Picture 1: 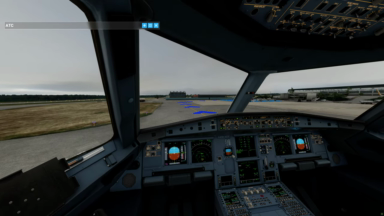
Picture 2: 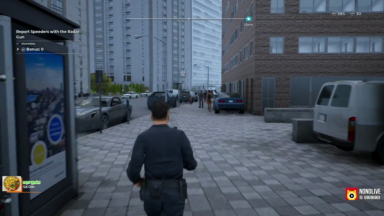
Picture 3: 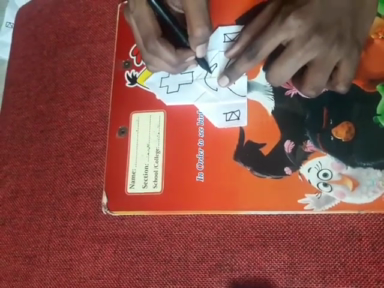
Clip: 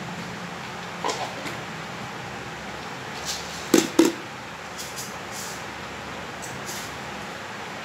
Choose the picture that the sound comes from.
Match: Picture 3